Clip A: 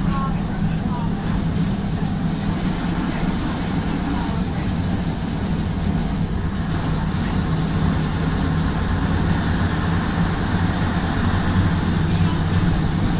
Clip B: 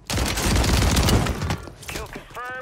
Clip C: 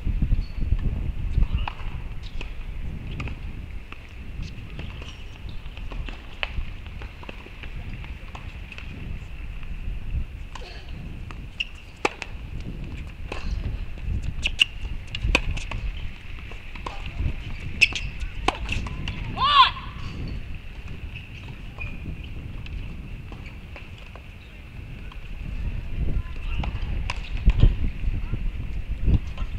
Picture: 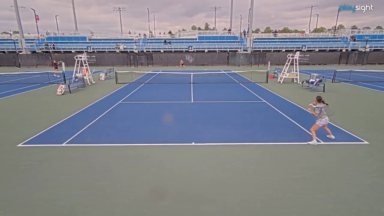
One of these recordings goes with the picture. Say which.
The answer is C